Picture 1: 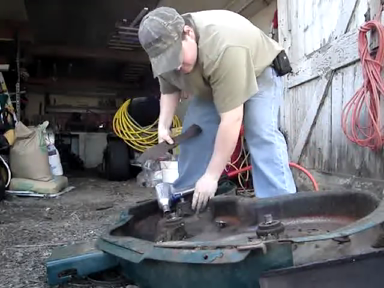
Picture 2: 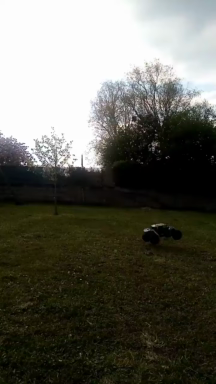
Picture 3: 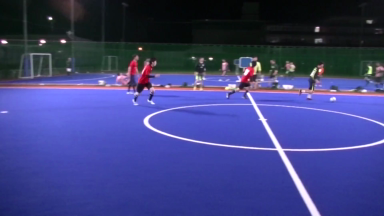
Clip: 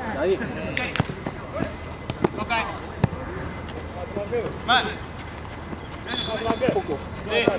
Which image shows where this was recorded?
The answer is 3